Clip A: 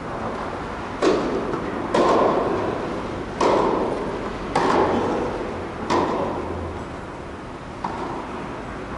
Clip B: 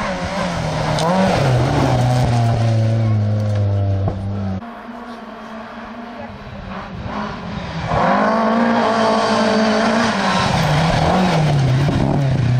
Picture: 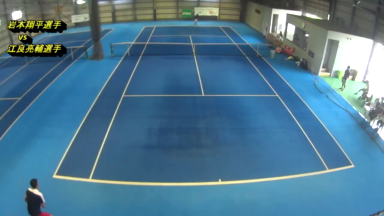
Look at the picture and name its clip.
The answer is A